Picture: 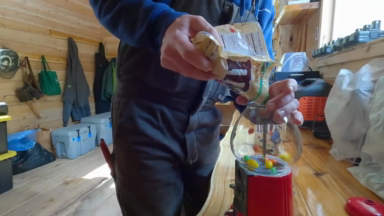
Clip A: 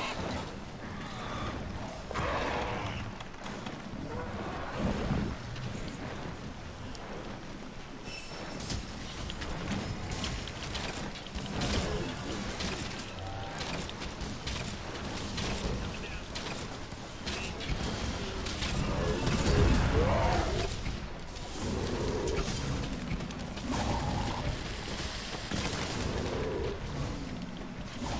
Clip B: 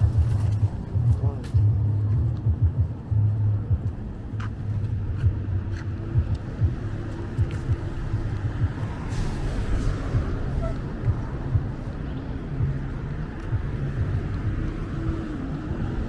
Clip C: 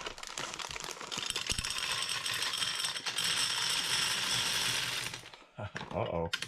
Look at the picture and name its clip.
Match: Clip C